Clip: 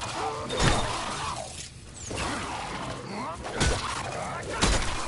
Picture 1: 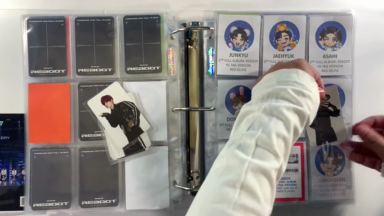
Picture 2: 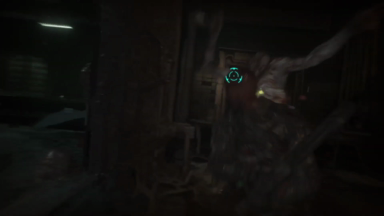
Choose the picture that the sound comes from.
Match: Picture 2